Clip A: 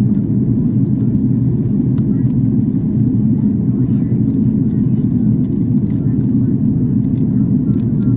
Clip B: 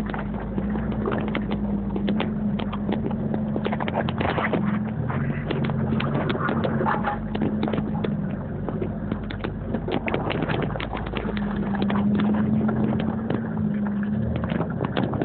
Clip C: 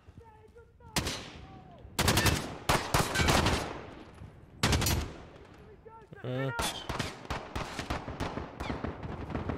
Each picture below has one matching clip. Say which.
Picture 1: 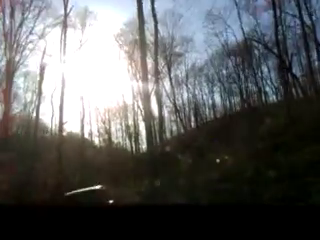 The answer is B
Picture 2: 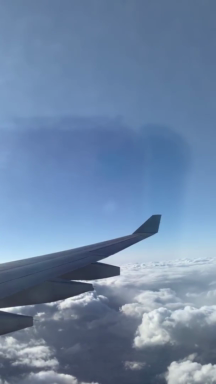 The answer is A